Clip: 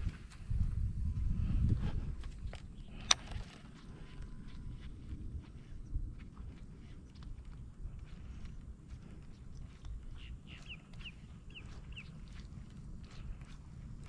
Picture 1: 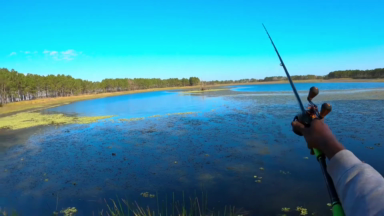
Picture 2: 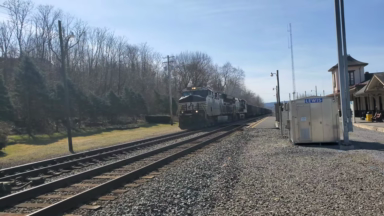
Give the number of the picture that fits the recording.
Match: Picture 1